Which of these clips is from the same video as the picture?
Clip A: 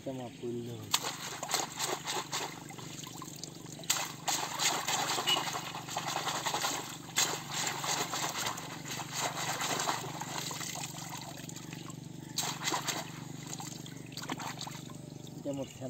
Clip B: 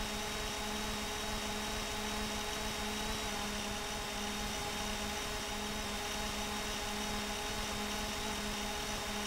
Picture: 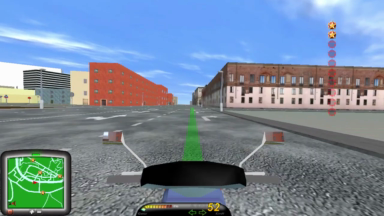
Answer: B